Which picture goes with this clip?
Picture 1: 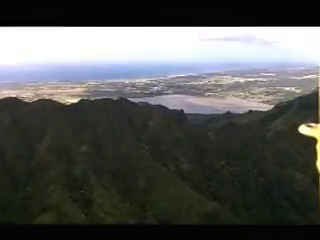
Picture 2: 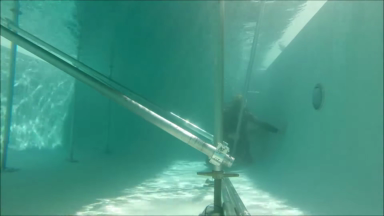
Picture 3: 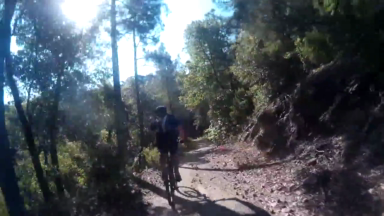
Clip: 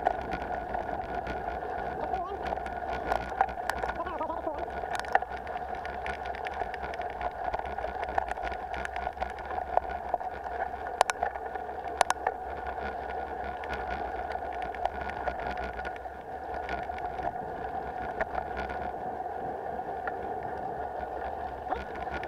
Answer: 3